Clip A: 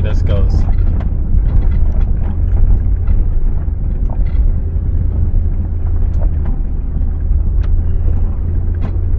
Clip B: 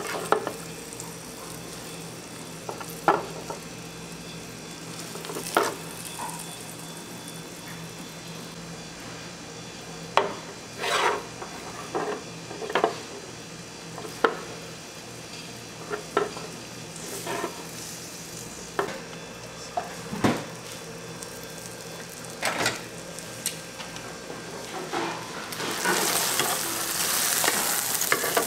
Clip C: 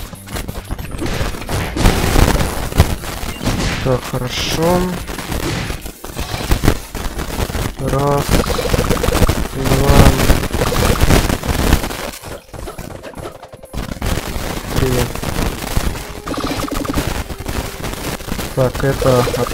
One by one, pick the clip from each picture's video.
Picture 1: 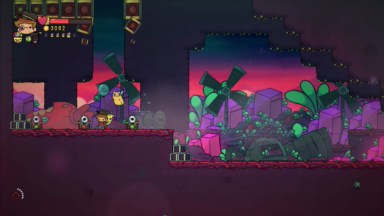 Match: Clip C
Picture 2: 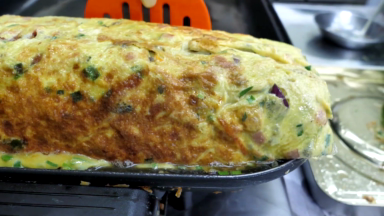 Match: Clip B